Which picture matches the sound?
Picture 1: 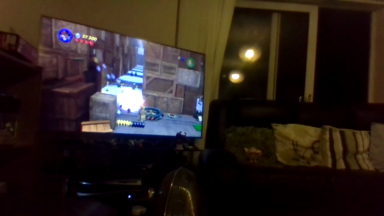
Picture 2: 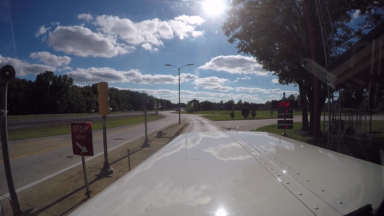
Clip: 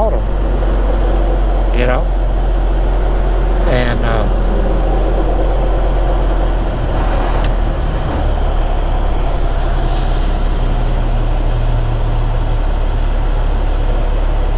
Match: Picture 2